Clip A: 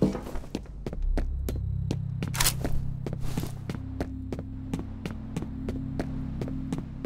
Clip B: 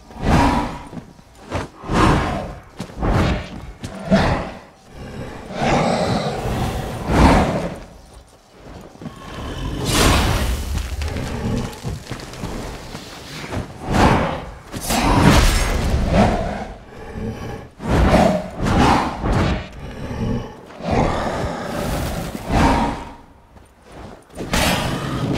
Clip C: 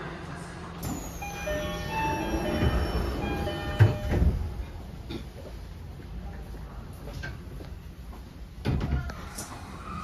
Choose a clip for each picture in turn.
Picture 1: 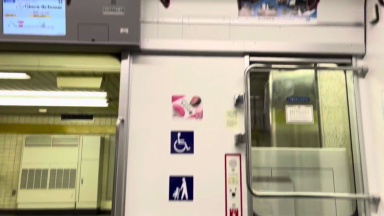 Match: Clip C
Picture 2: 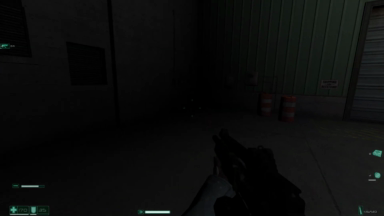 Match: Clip A